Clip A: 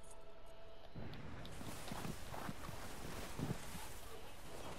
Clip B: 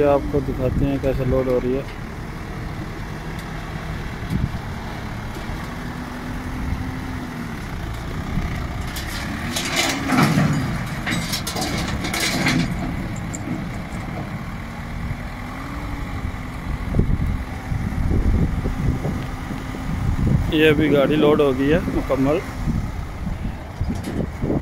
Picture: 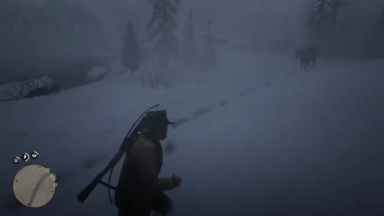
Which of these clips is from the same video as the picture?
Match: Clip A